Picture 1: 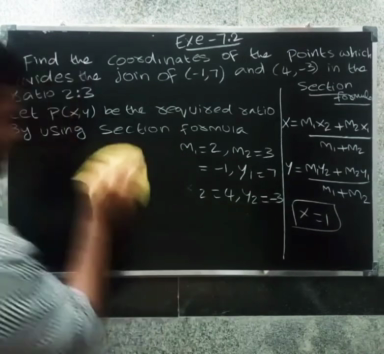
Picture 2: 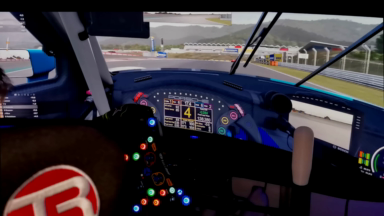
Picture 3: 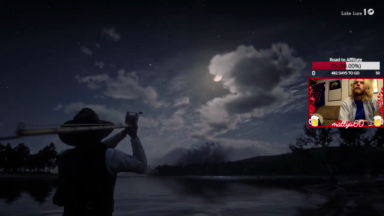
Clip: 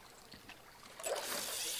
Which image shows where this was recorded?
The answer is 3